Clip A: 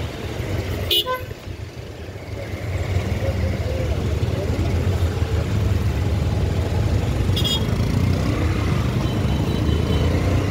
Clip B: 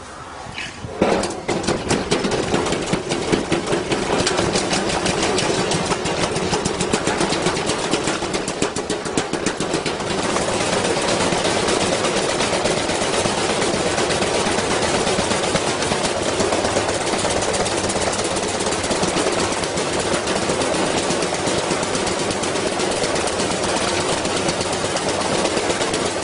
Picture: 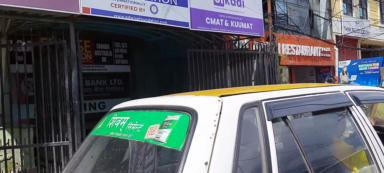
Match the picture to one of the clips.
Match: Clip A